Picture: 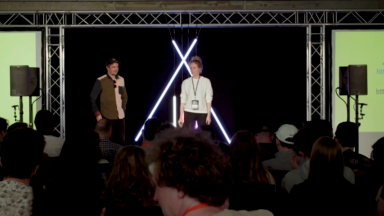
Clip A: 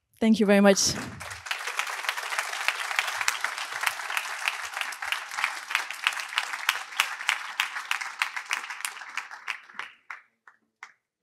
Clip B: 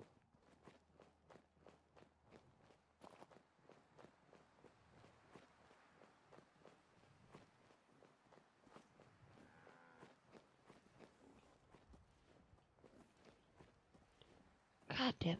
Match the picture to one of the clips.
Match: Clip A